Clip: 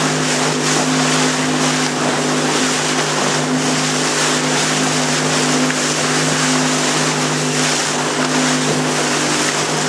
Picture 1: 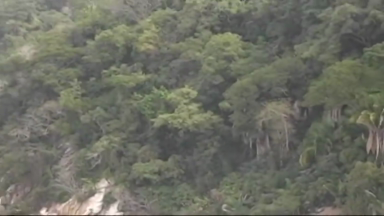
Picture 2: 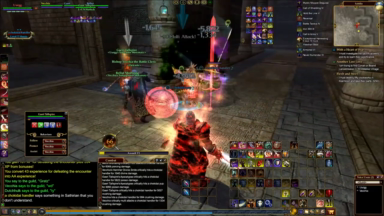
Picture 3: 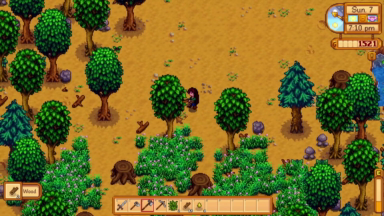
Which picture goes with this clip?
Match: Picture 1